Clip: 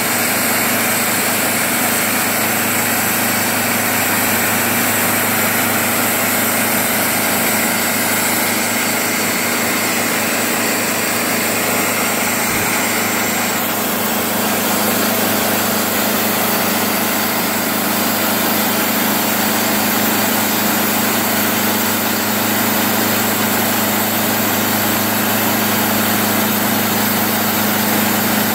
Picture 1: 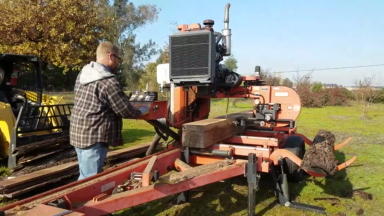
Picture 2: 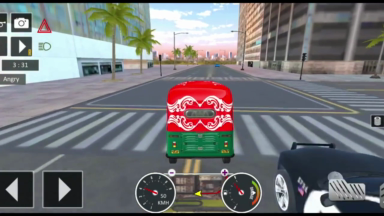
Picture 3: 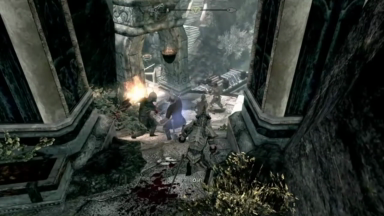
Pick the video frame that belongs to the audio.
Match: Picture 1